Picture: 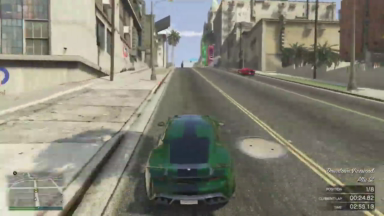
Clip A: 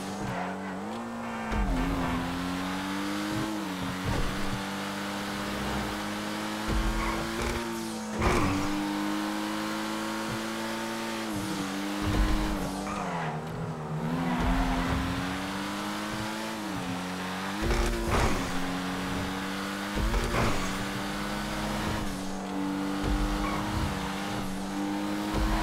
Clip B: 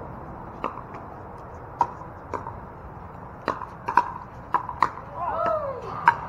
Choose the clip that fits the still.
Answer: A